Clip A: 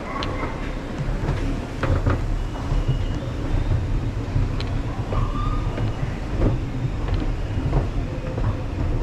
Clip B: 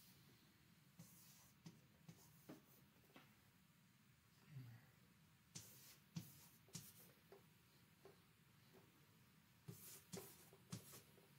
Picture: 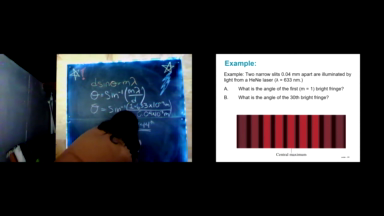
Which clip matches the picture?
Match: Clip B